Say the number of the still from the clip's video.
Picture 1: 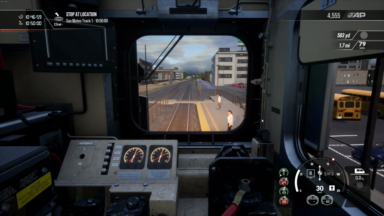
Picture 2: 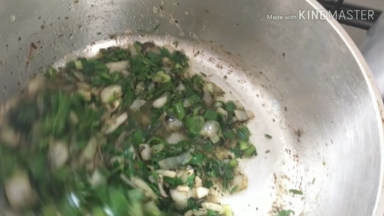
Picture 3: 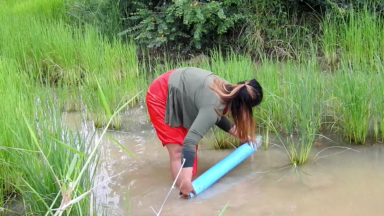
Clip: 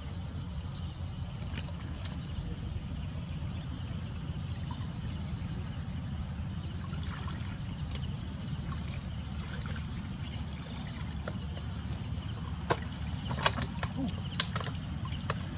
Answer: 3